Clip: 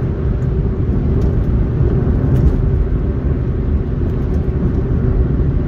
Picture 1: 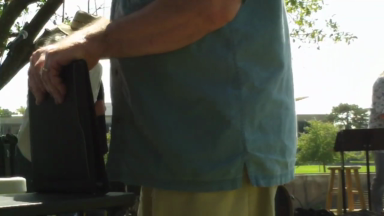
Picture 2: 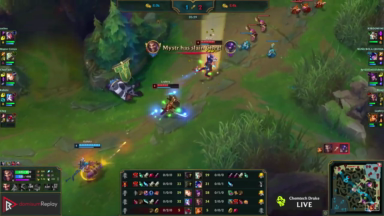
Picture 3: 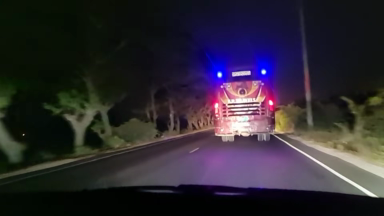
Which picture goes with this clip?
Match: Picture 3